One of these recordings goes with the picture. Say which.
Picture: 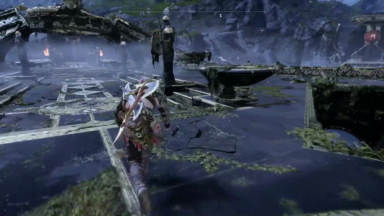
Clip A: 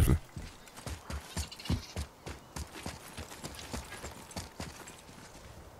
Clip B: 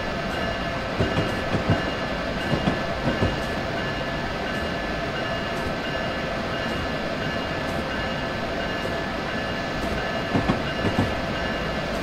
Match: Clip A